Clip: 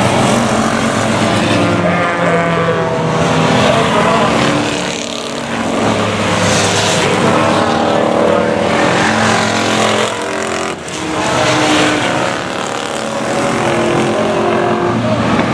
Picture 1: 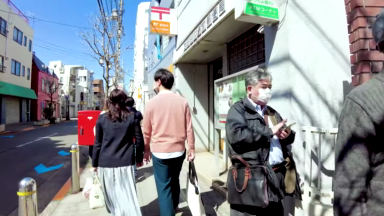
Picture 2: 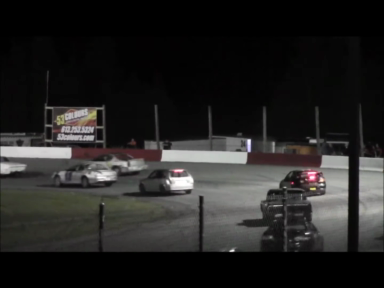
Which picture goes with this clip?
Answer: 2